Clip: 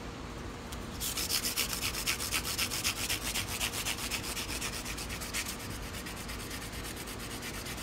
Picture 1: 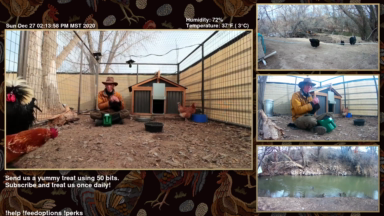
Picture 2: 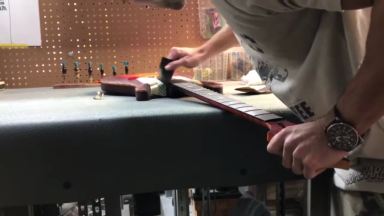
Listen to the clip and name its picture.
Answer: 2